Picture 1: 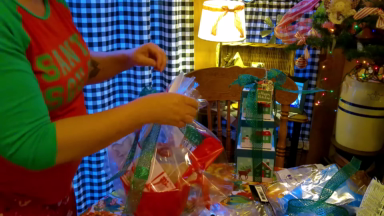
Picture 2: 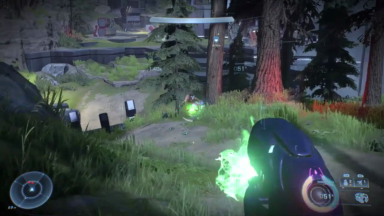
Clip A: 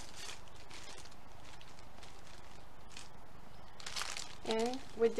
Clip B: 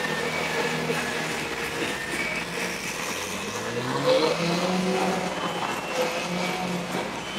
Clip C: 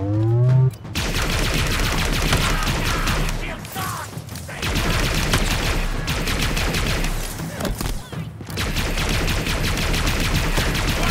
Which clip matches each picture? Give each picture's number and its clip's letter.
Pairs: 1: A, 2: C